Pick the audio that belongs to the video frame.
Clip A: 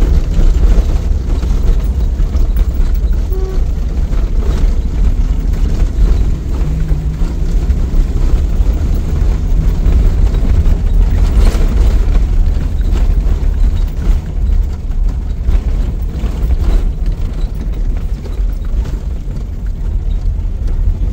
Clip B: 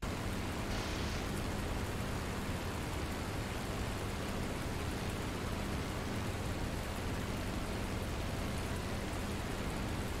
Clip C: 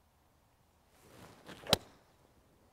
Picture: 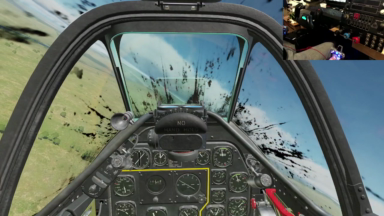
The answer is B